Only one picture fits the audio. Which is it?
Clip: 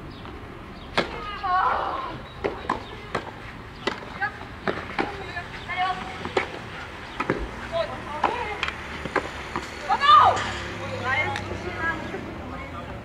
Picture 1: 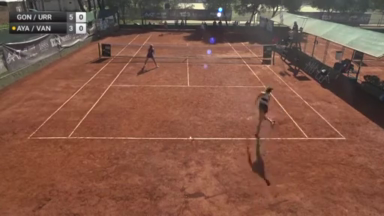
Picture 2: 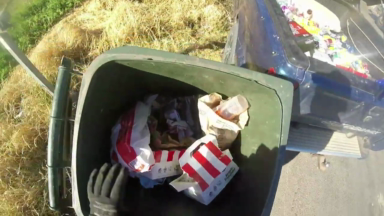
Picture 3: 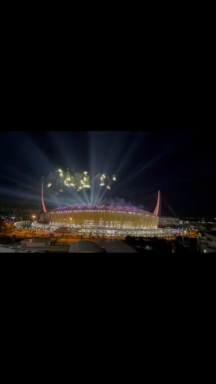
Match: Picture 1